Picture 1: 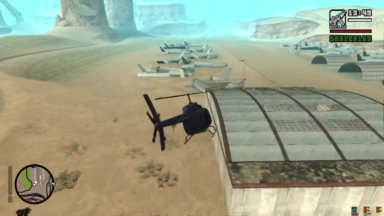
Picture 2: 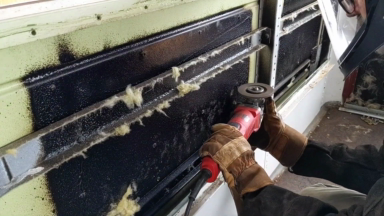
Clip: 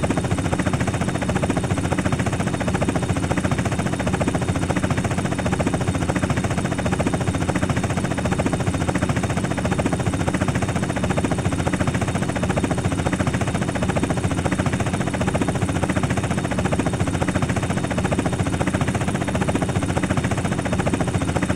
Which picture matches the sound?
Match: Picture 1